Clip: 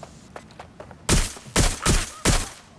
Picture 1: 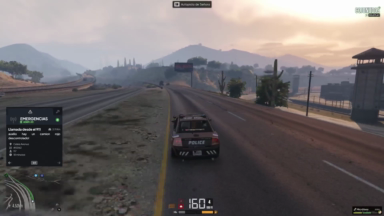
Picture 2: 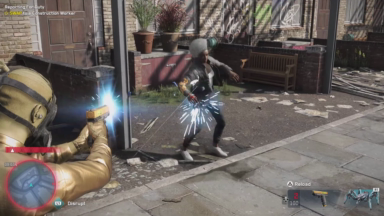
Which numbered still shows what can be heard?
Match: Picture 2